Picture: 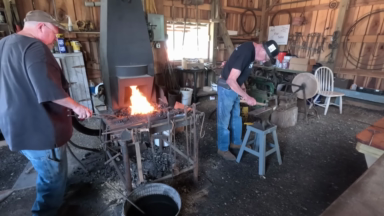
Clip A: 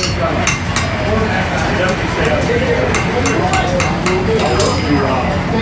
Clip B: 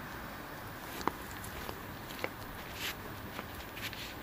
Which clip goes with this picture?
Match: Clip A